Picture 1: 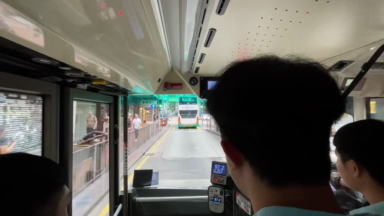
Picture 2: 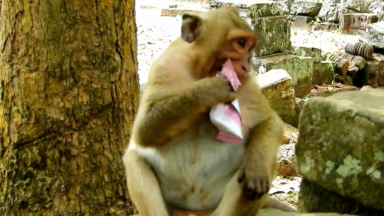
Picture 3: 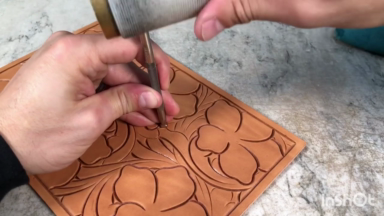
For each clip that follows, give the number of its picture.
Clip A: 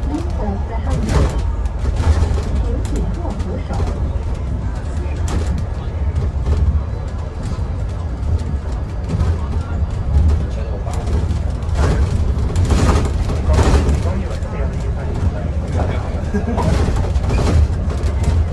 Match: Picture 1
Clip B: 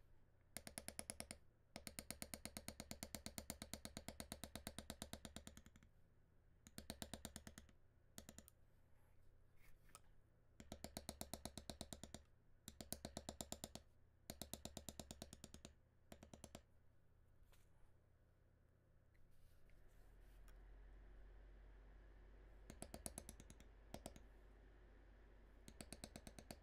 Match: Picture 3